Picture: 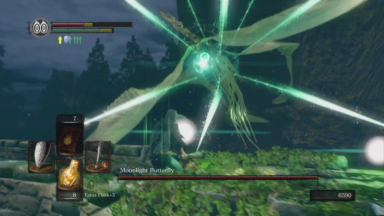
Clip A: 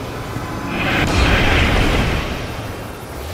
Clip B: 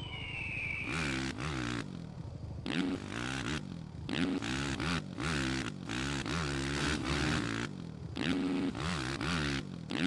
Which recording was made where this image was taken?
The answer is A